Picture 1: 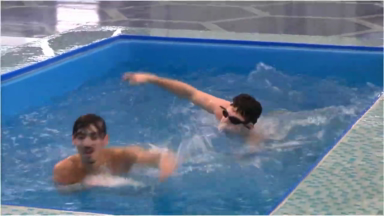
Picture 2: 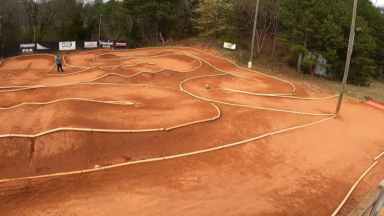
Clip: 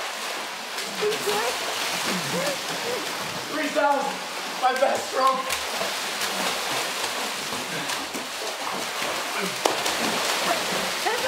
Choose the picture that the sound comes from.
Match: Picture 1